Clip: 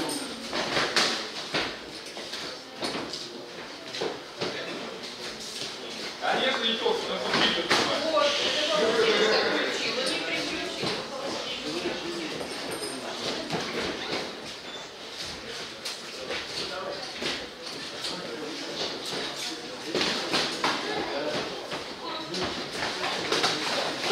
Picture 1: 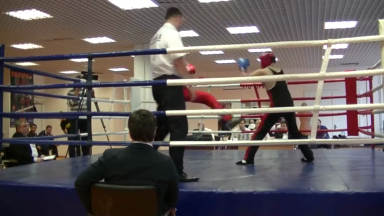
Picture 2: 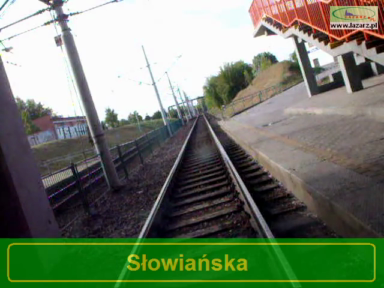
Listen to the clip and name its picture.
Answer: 1